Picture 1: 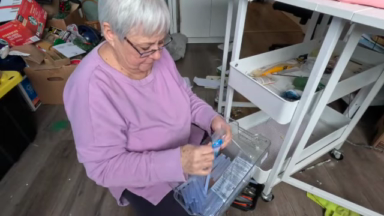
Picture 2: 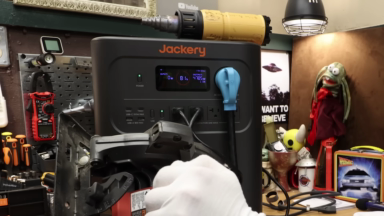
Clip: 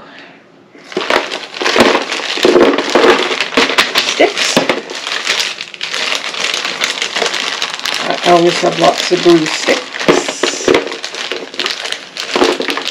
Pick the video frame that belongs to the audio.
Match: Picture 1